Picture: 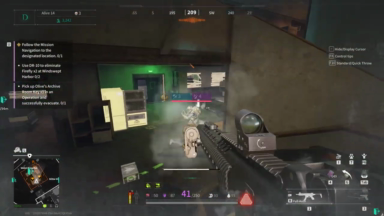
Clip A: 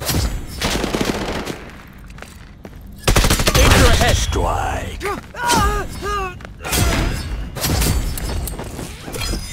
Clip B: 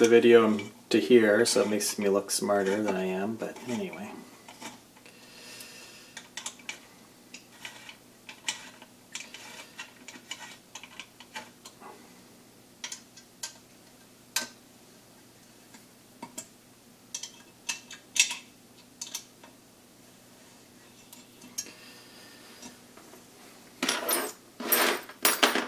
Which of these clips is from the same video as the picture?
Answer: A